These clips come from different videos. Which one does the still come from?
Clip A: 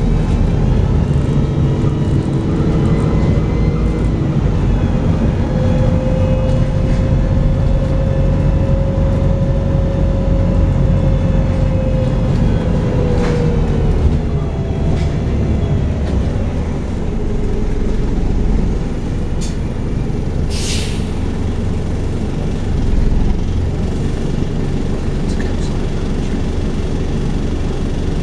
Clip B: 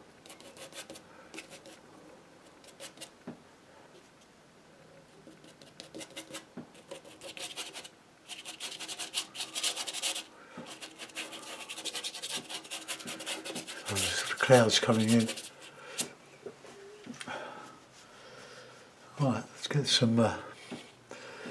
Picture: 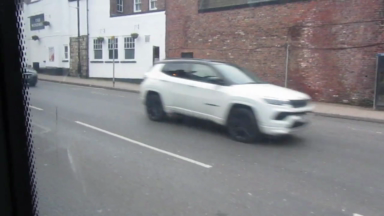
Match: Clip A